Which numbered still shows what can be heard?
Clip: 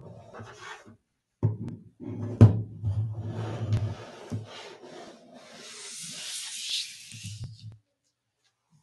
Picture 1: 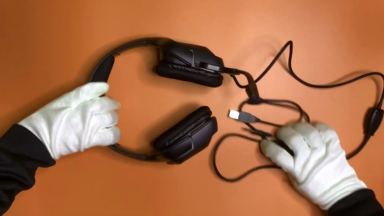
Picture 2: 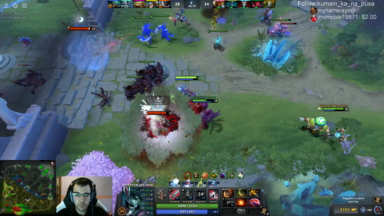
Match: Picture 1